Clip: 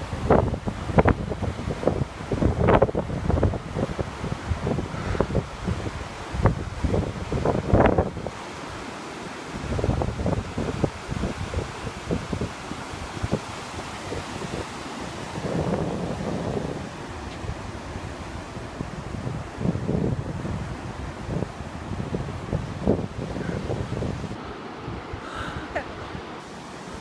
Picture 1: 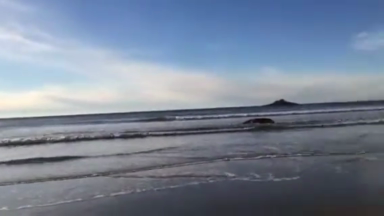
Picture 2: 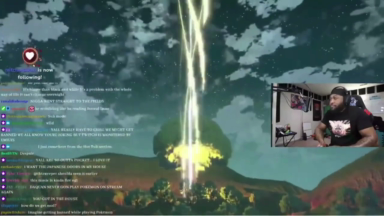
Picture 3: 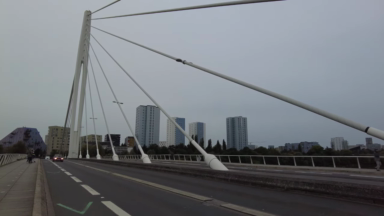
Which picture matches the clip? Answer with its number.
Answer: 1